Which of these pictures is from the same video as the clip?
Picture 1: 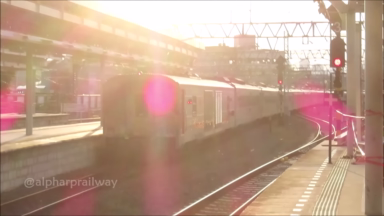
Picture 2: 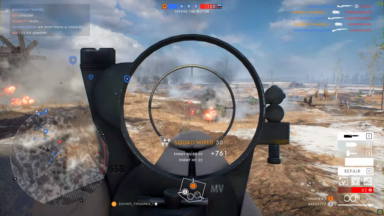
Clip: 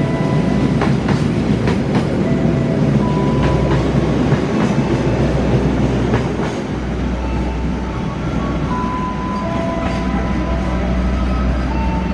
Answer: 1